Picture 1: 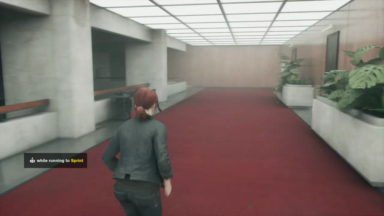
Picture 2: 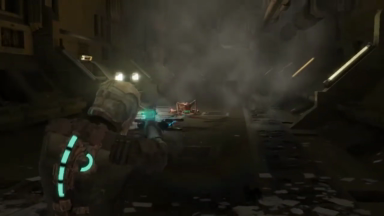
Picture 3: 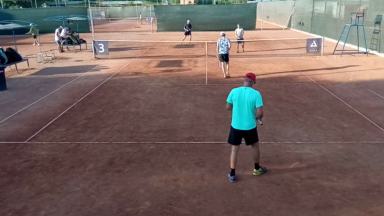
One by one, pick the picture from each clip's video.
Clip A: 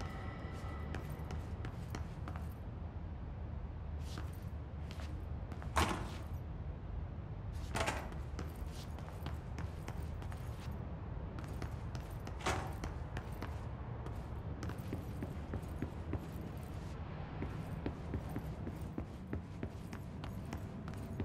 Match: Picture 1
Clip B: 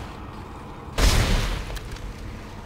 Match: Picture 2